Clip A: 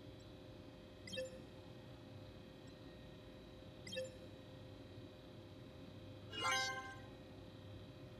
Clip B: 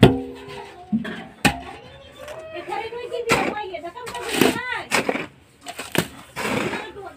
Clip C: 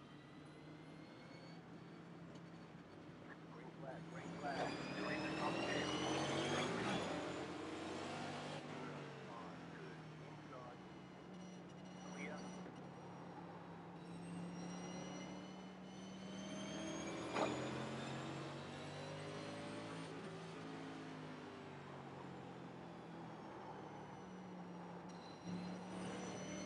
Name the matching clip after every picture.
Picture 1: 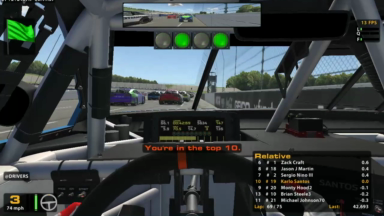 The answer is C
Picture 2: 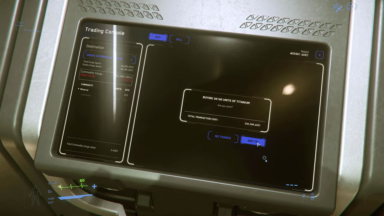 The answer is A